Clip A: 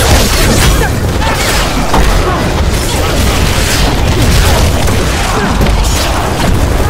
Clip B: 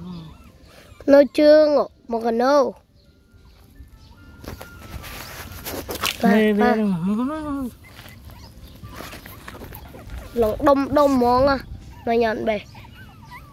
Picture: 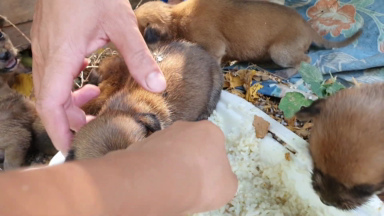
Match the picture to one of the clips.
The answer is B